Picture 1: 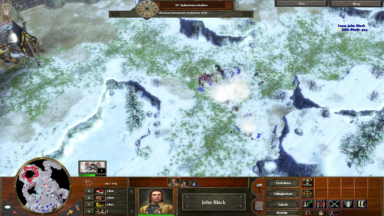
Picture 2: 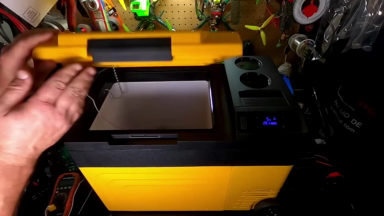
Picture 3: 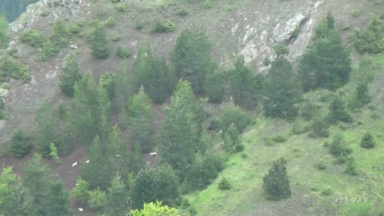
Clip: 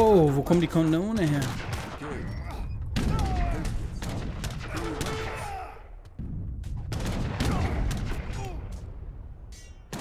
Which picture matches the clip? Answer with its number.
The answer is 1